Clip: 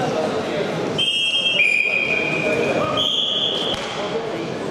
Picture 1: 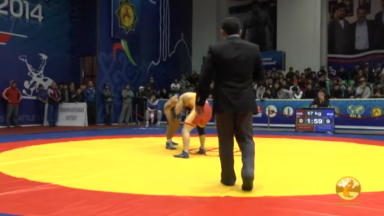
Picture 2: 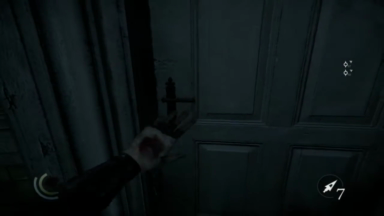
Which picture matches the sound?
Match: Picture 1